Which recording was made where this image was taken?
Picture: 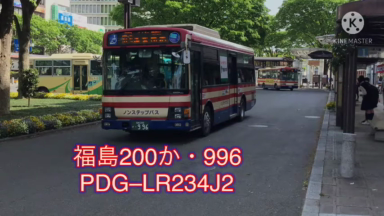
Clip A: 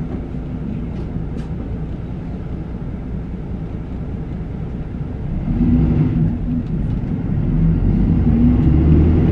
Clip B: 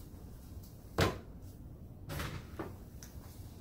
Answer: A